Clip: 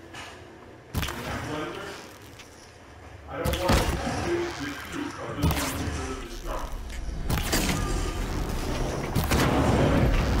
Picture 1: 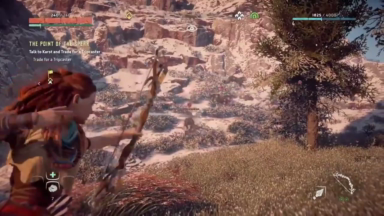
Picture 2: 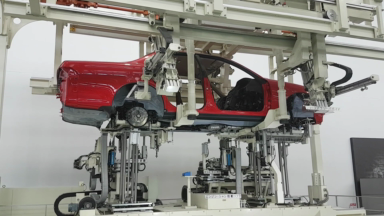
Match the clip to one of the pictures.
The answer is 1